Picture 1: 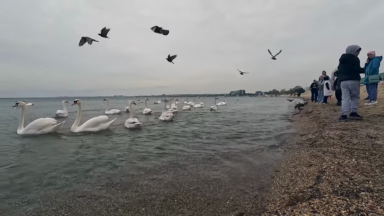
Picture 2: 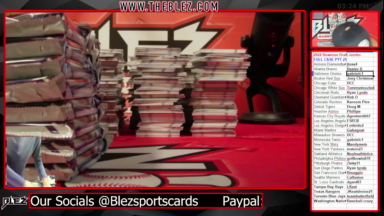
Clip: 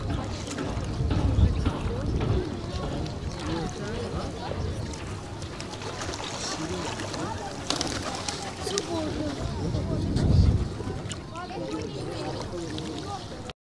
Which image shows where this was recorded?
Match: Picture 1